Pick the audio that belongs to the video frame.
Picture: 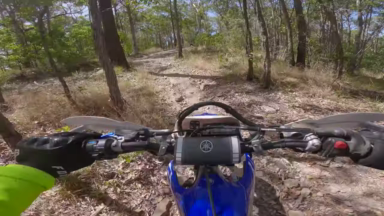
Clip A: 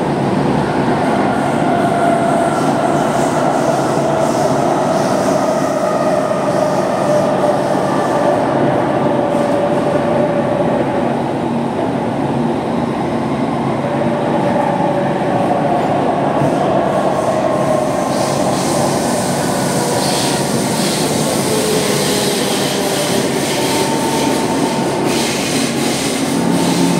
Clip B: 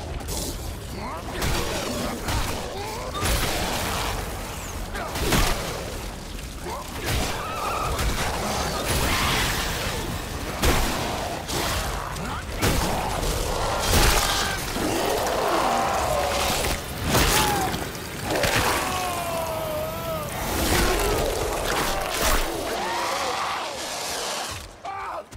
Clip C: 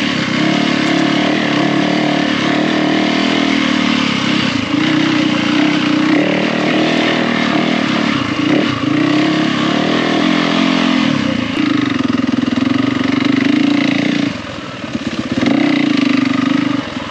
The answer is C